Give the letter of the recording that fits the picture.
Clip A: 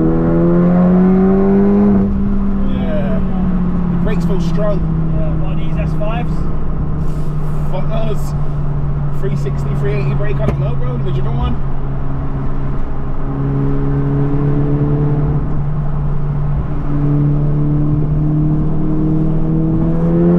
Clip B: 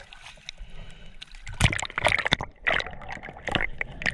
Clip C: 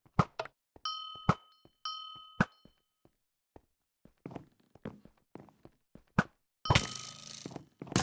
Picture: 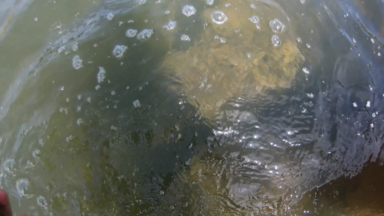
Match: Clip B